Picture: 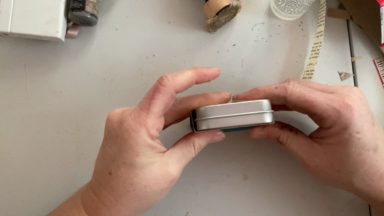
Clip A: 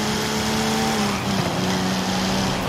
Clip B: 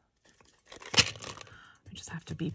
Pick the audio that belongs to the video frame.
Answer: B